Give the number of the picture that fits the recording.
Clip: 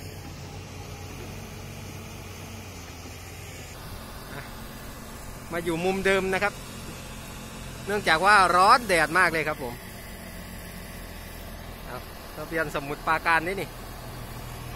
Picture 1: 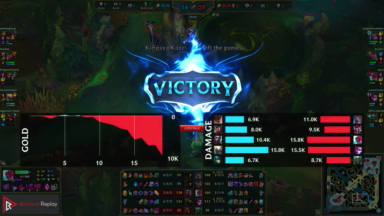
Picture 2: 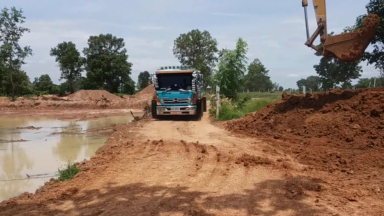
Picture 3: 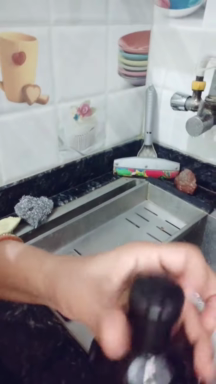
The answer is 2